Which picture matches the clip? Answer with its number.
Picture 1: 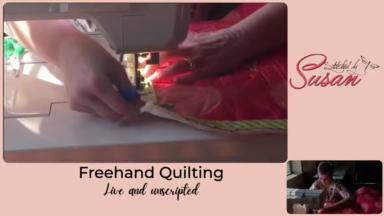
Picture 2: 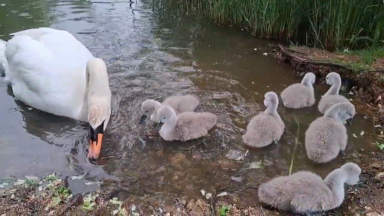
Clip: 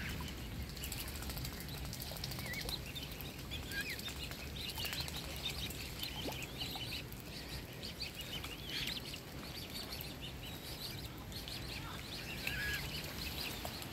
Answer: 2